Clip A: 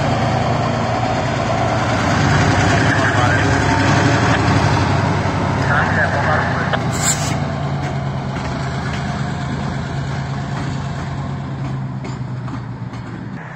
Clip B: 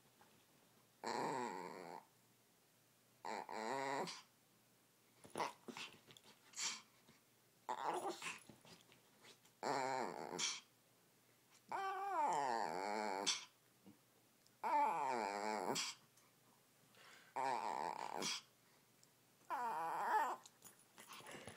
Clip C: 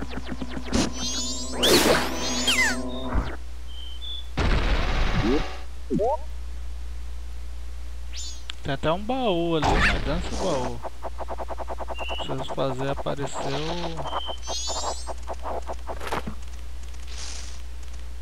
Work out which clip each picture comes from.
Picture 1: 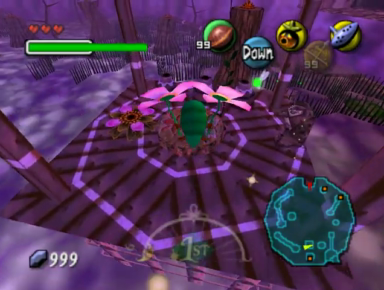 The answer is C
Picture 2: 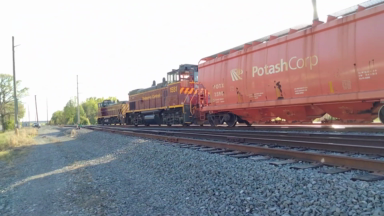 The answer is A